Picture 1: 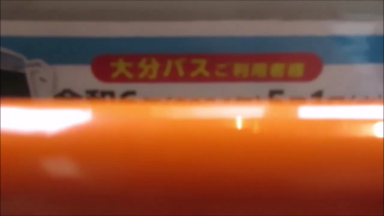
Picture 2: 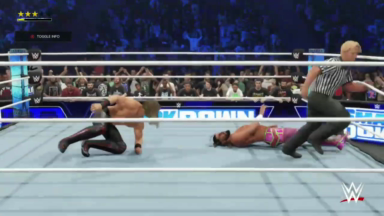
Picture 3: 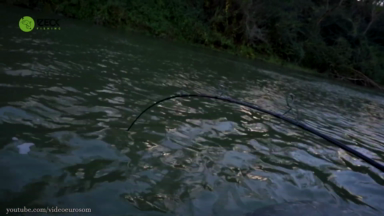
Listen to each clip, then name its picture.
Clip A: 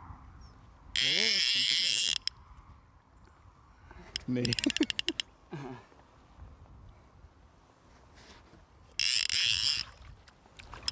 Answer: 3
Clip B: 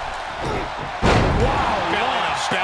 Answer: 2